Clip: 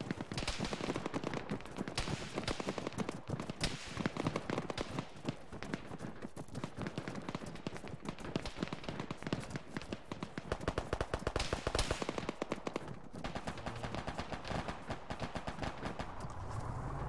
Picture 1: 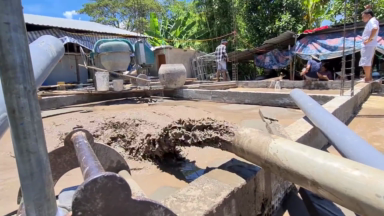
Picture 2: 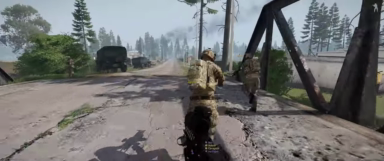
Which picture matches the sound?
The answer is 2